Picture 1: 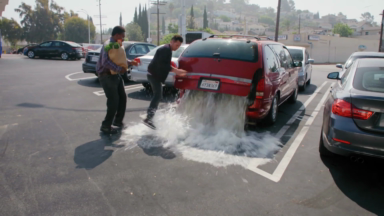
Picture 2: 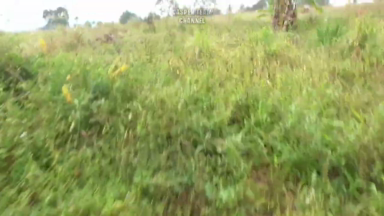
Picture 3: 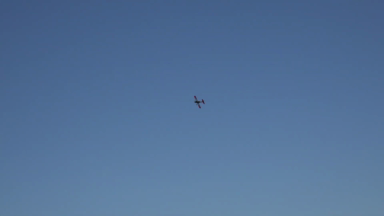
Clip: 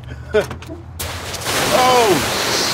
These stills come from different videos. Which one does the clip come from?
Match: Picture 1